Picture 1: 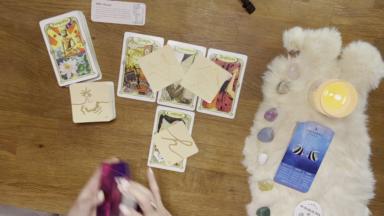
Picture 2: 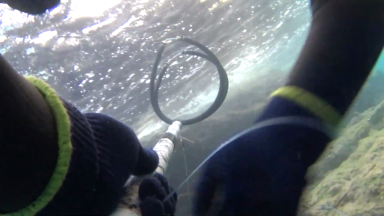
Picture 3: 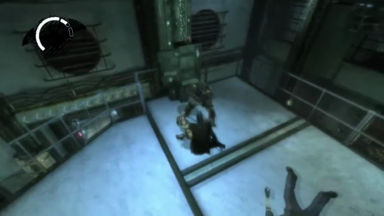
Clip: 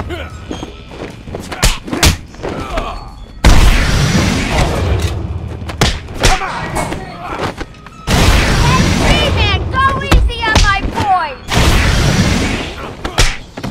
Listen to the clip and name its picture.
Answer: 3